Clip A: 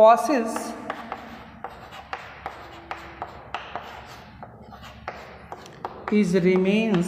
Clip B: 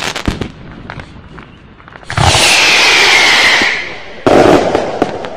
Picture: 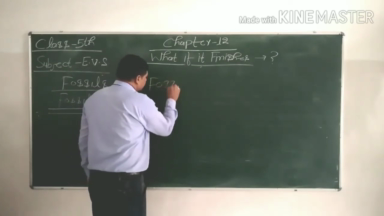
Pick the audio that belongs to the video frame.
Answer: A